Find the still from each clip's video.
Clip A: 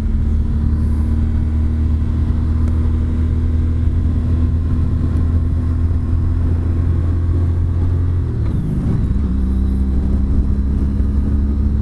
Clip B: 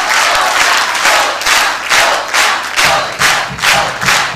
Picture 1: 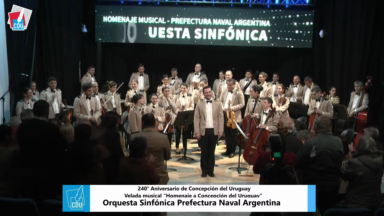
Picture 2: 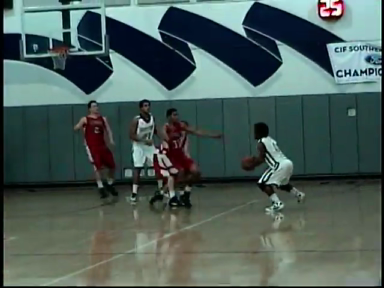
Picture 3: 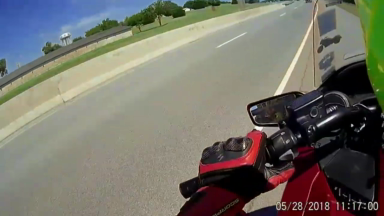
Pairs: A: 3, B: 1